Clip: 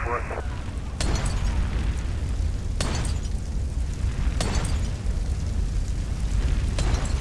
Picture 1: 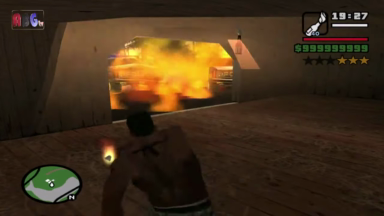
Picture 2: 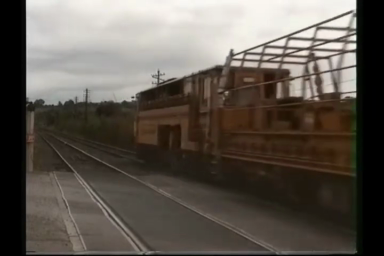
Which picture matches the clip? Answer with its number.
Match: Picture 1